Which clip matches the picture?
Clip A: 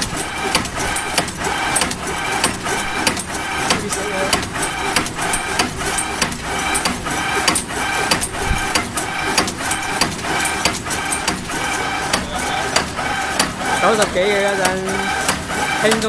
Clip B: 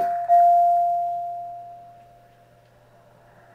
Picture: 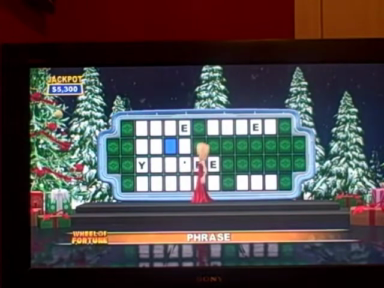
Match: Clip B